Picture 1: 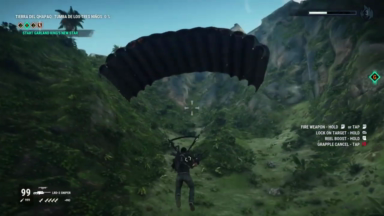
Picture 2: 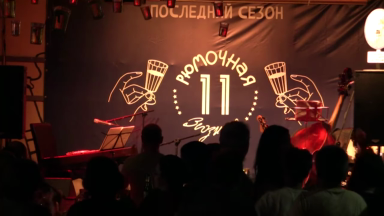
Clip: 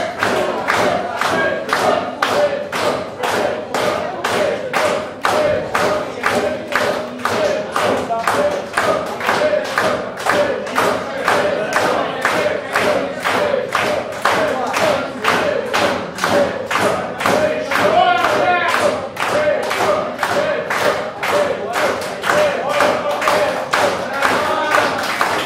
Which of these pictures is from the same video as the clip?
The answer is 2